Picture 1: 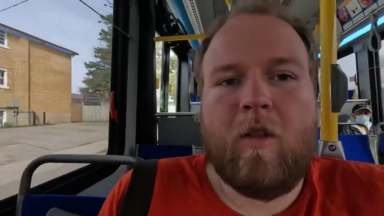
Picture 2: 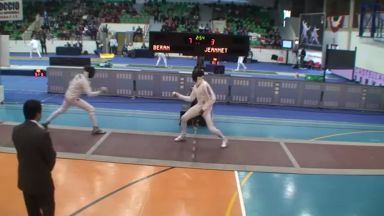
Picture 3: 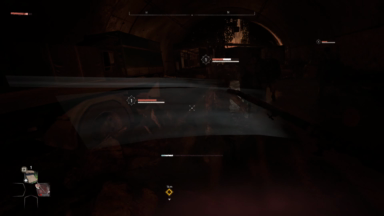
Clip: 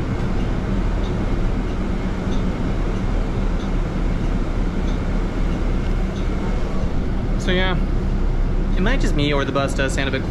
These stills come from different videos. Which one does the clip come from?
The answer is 1